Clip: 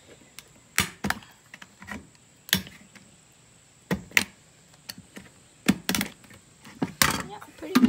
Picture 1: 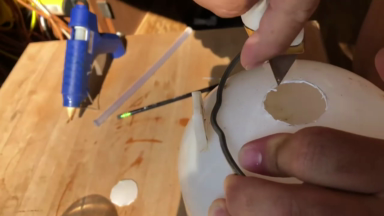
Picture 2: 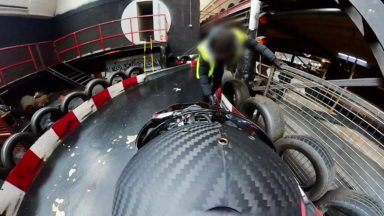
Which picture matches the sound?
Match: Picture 1